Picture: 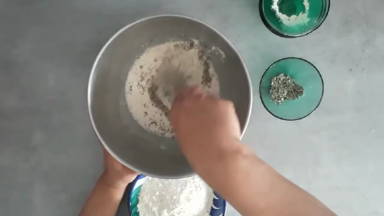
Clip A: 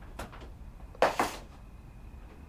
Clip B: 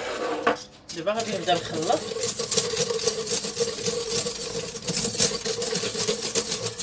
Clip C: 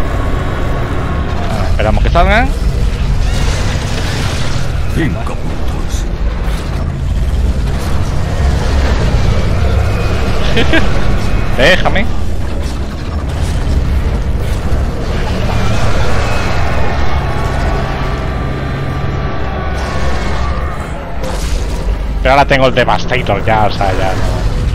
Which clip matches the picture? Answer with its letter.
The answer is B